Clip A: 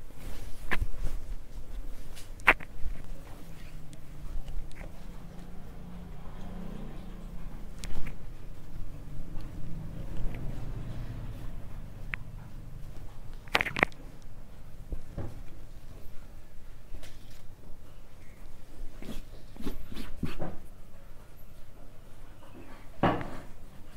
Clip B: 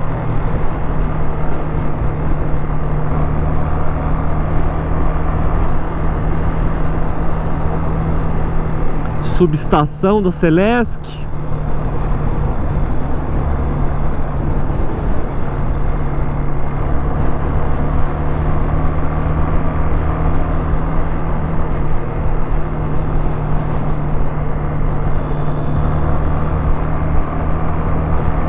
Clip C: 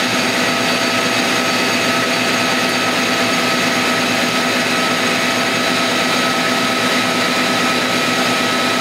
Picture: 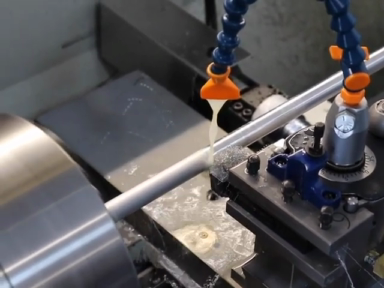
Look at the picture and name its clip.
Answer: C